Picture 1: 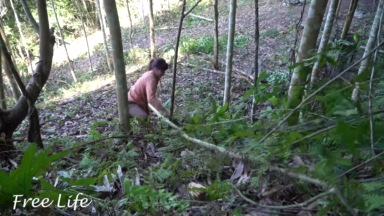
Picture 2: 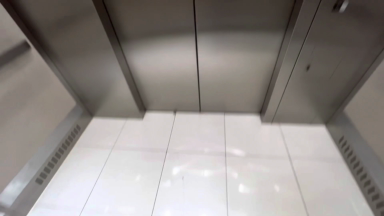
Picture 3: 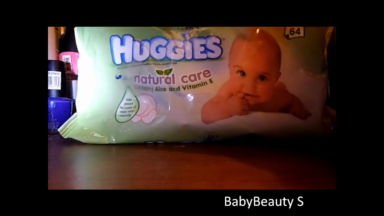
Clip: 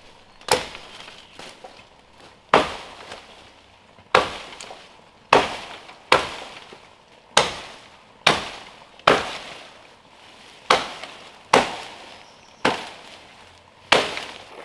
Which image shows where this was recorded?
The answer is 1